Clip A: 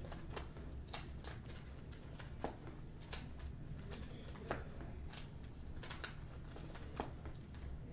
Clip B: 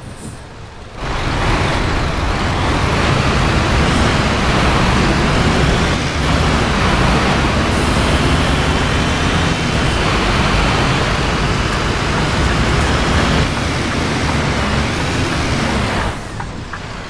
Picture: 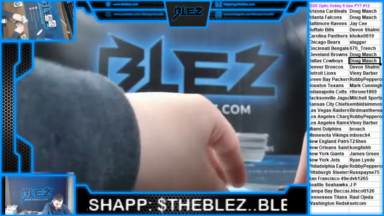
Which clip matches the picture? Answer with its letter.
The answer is A